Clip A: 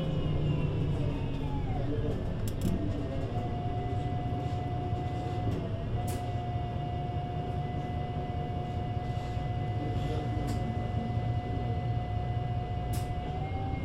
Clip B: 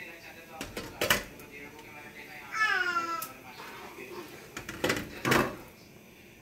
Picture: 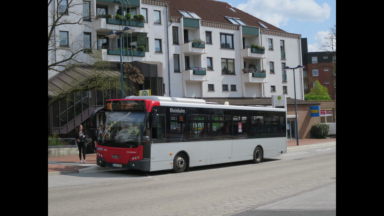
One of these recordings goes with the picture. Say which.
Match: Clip A